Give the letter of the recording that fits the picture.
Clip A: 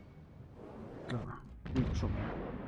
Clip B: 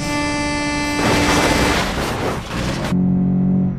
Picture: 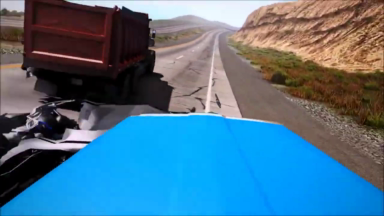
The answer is B